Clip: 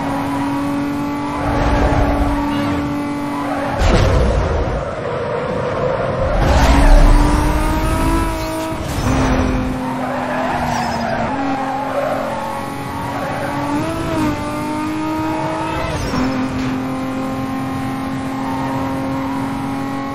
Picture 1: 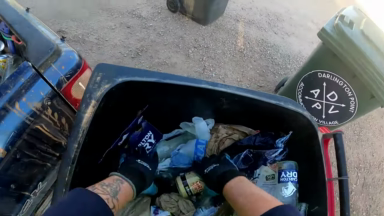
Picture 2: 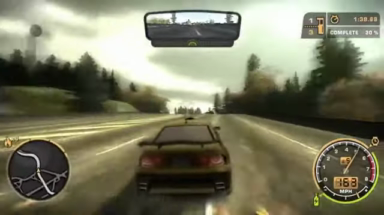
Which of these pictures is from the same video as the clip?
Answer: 2